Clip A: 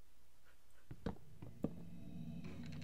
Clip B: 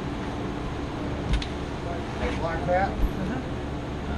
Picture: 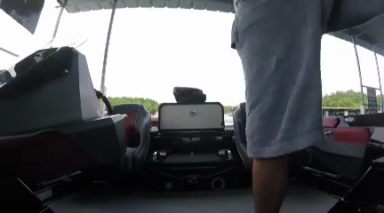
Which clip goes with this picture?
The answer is B